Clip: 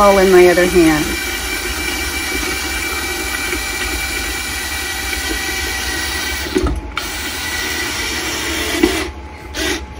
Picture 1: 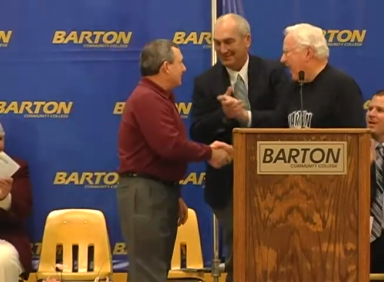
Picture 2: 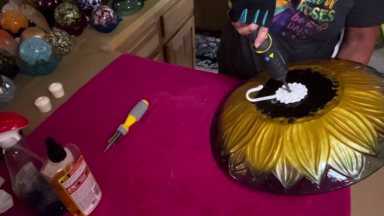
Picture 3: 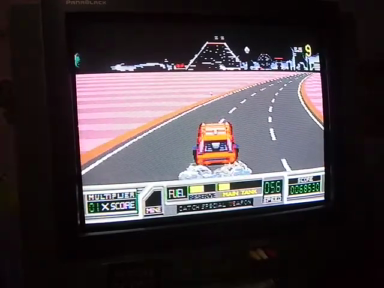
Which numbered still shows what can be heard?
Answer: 2